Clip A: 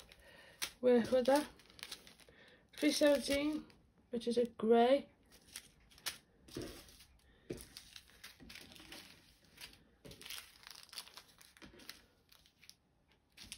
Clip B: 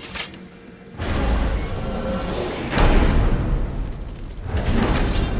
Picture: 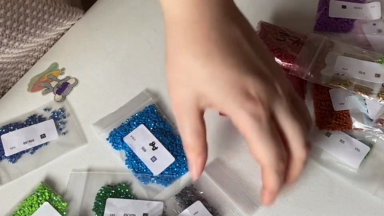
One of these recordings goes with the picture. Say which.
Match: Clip A